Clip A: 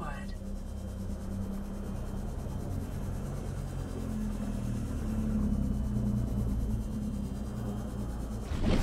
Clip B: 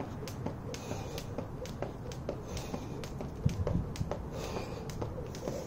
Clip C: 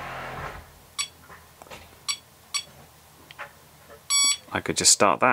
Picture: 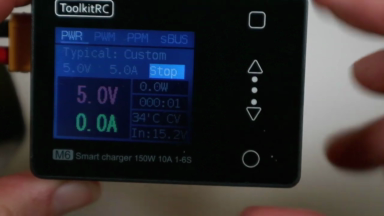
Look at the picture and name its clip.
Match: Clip C